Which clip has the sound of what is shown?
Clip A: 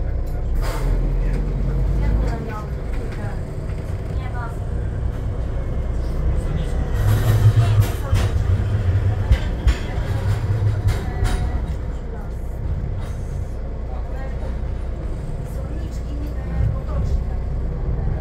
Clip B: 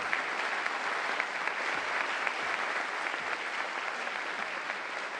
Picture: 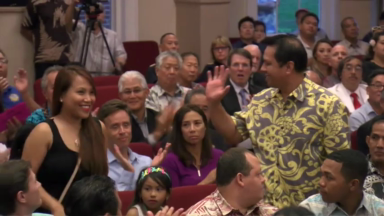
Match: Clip B